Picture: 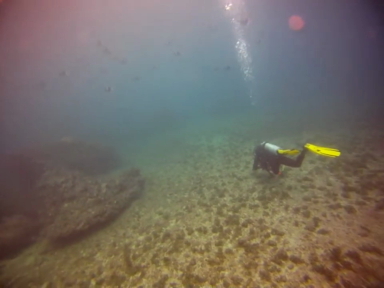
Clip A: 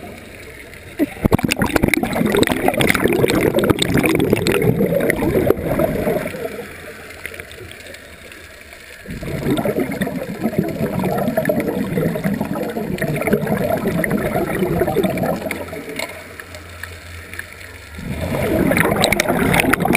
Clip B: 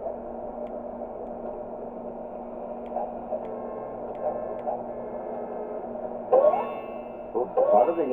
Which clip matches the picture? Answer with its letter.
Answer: A